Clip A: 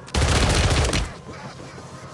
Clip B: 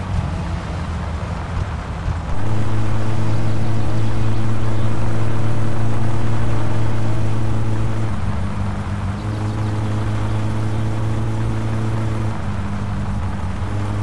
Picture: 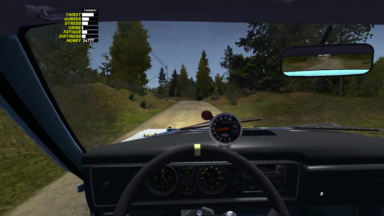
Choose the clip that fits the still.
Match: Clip B